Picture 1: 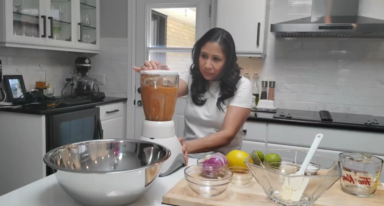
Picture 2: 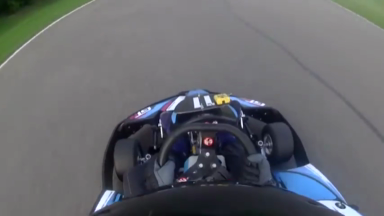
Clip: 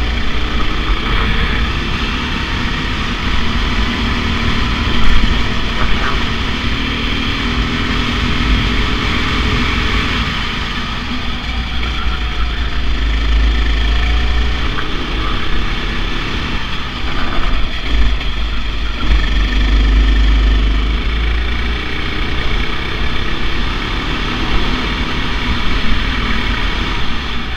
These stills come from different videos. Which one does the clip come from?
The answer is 2